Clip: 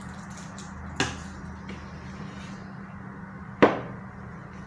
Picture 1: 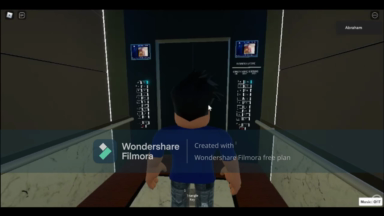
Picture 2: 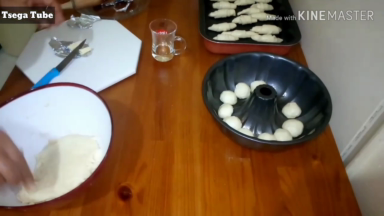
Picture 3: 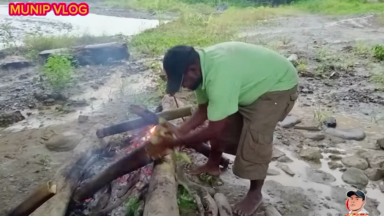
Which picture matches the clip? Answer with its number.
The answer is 2